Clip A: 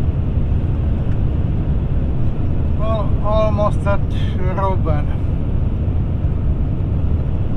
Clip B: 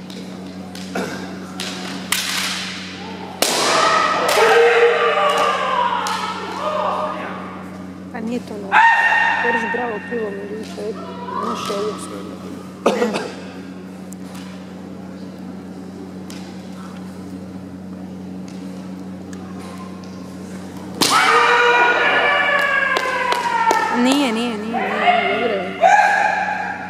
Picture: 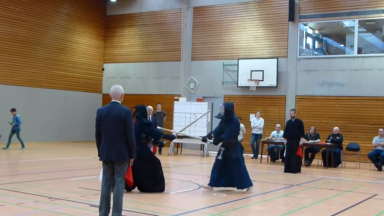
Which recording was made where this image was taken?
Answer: B